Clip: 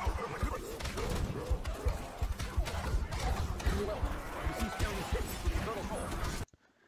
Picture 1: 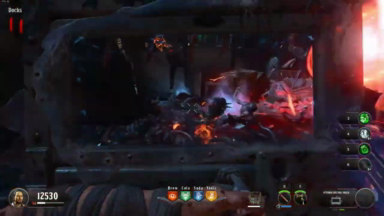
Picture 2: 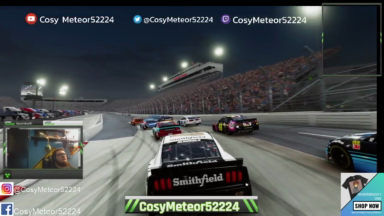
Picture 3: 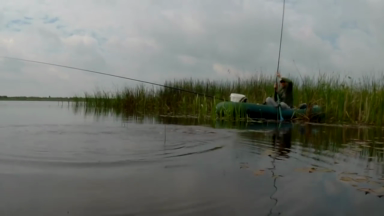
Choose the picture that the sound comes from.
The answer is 1